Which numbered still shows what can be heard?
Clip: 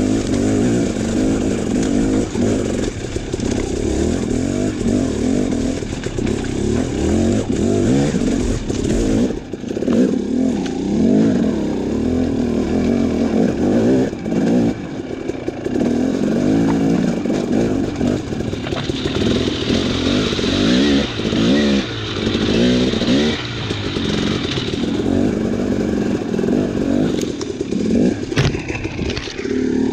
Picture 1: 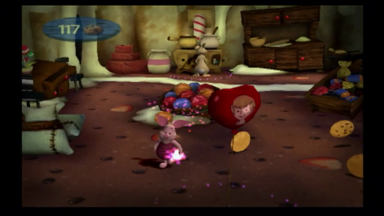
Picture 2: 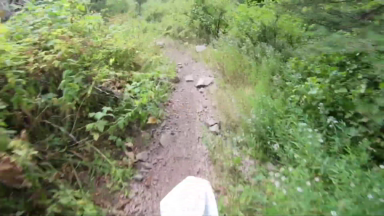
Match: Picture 2